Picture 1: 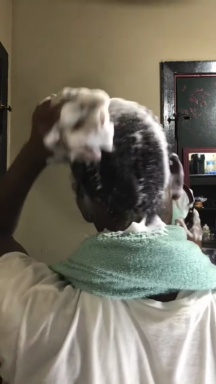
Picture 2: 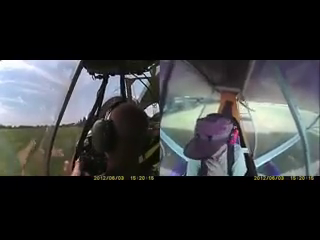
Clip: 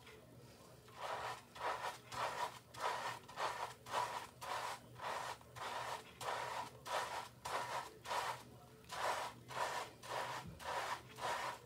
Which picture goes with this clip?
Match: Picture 1